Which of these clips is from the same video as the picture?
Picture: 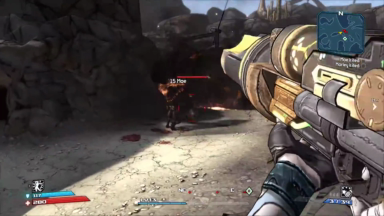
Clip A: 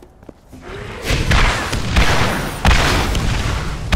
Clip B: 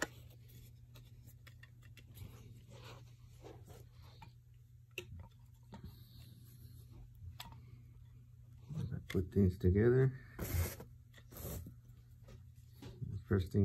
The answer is A